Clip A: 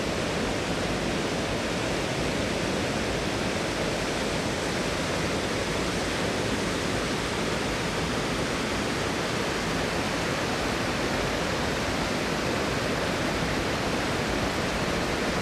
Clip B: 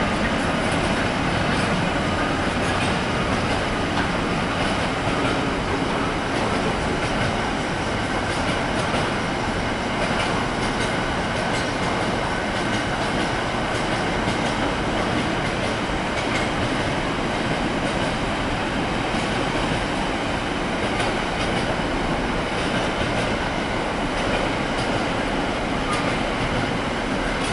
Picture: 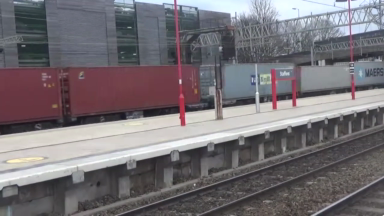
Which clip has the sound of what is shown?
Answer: B